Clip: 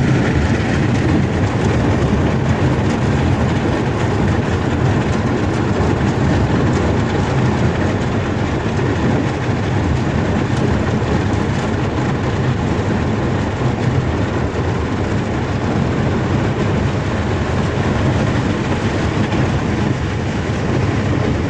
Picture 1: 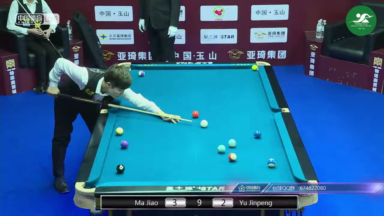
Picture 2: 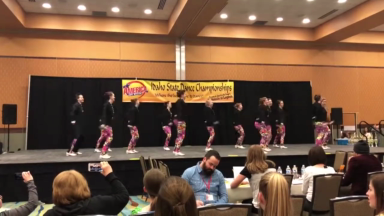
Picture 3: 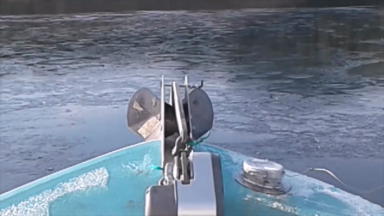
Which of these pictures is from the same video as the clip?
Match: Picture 3